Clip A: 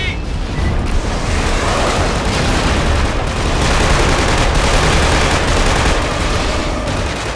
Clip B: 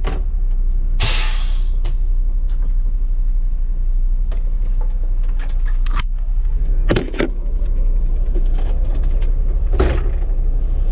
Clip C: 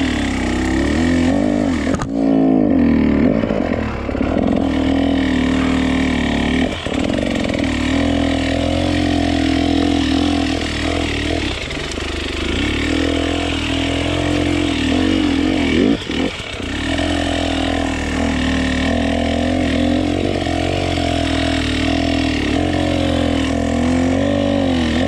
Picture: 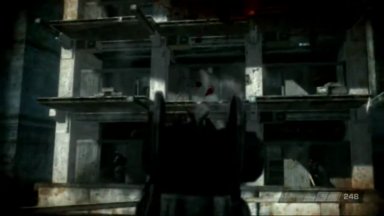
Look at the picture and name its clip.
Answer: A